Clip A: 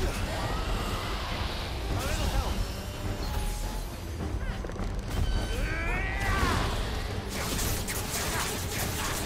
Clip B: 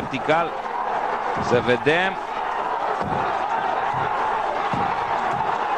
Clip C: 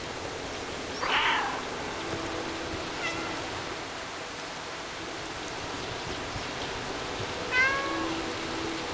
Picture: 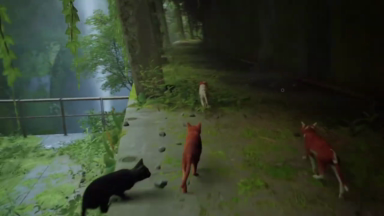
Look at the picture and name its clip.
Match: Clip C